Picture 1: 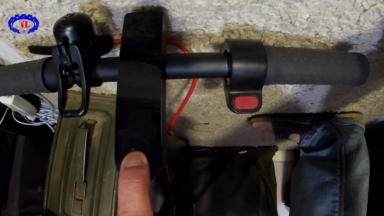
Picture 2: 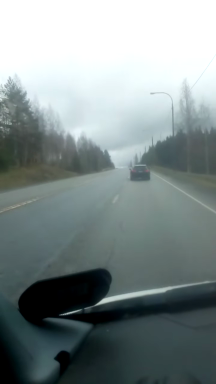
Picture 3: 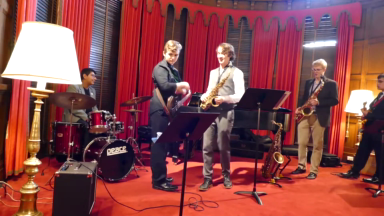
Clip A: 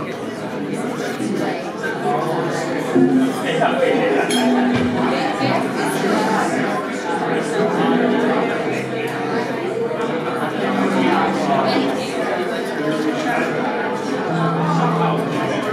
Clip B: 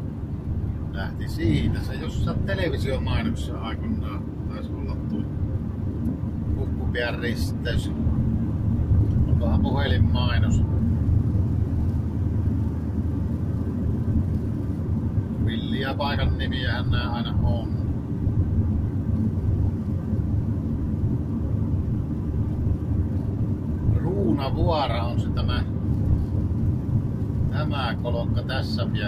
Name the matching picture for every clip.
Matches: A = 3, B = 2